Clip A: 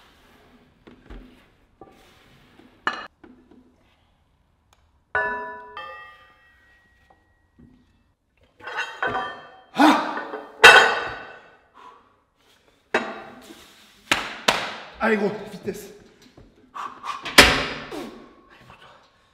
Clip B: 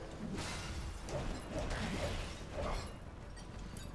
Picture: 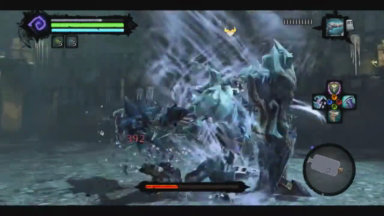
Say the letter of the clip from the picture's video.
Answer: B